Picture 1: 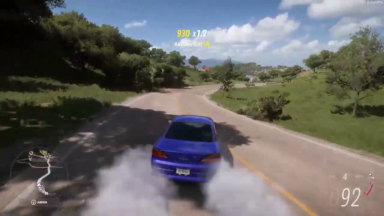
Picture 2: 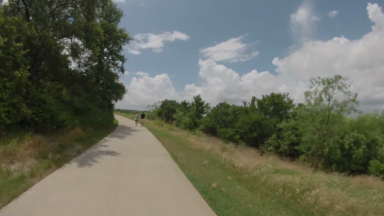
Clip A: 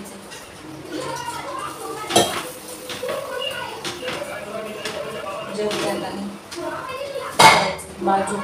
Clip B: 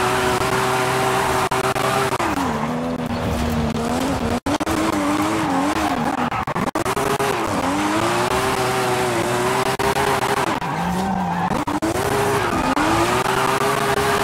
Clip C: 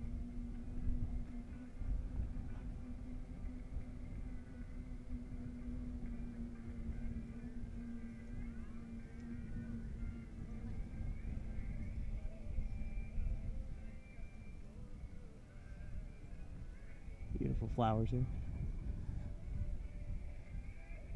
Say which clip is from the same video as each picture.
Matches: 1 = B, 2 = C